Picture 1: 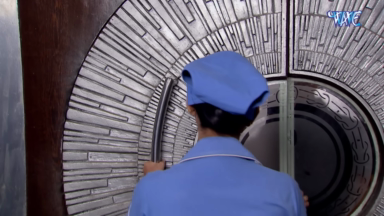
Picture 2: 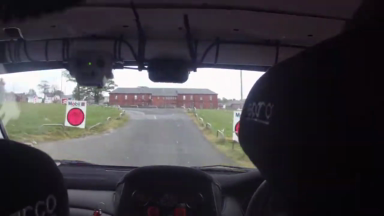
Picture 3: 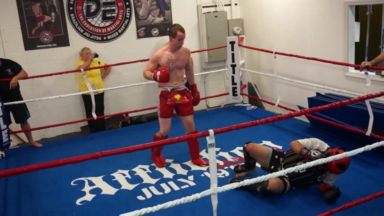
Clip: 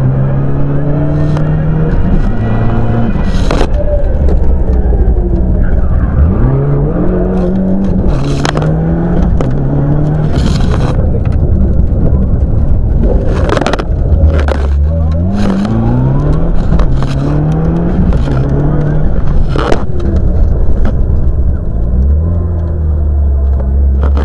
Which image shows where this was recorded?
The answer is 2